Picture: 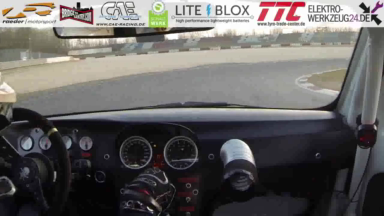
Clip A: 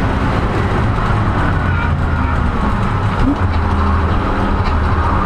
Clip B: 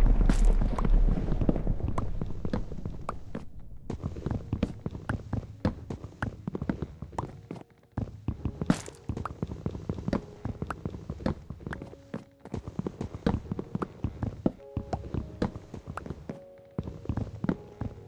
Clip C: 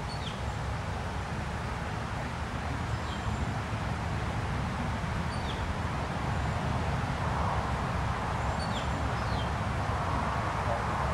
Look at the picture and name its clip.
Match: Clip A